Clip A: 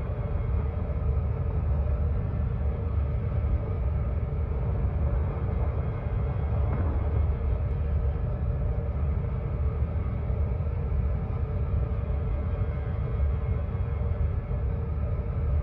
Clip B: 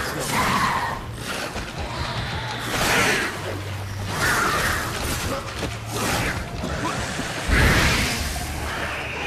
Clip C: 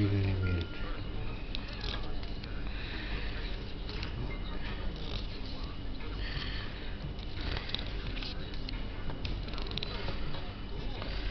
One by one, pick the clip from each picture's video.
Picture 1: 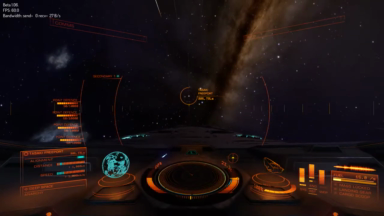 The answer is A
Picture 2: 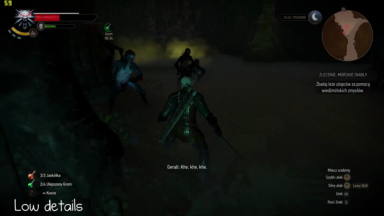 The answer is B